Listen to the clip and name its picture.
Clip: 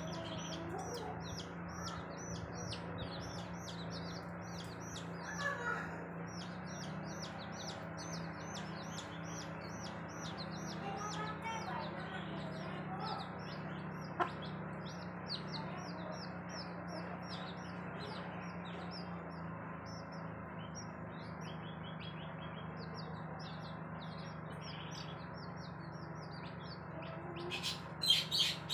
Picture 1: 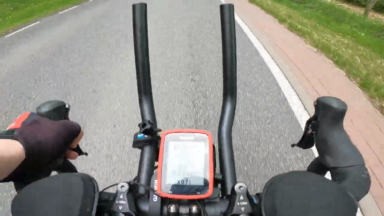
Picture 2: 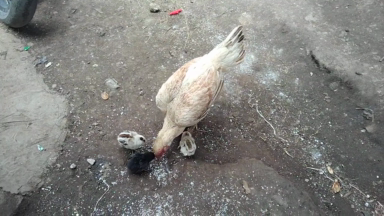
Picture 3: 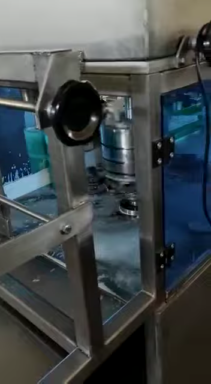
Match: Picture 2